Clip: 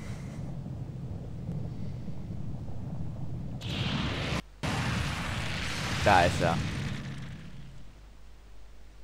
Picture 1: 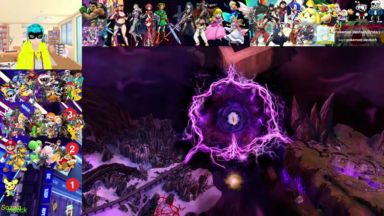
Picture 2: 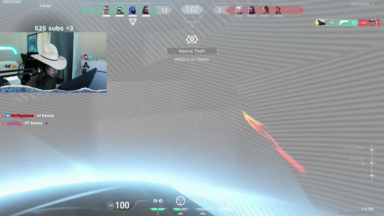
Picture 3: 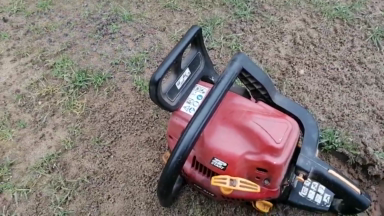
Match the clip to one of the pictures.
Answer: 1